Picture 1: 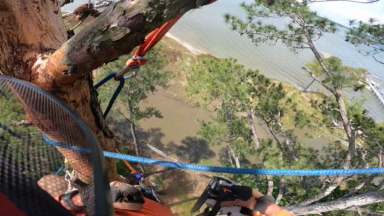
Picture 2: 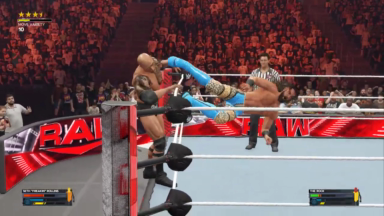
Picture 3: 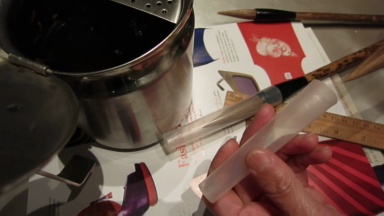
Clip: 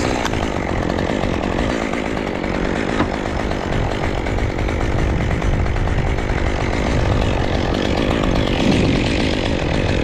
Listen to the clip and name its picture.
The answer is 1